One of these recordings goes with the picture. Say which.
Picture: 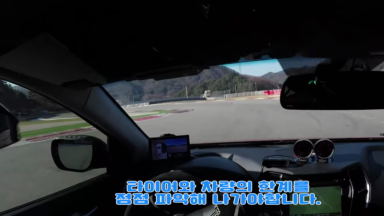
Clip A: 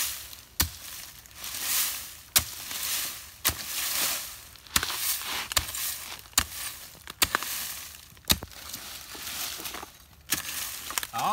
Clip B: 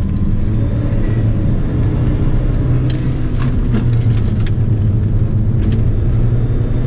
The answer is B